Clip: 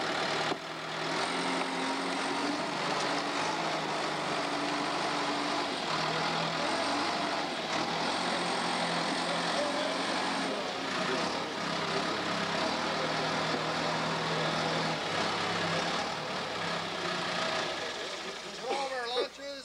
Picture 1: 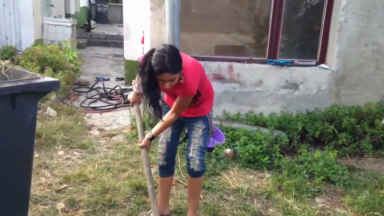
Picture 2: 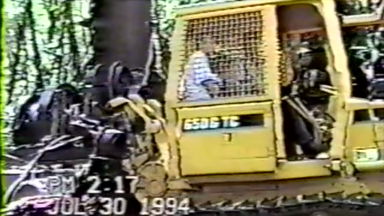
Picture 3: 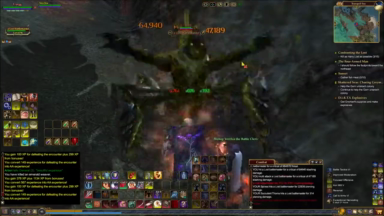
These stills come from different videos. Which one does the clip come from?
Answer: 2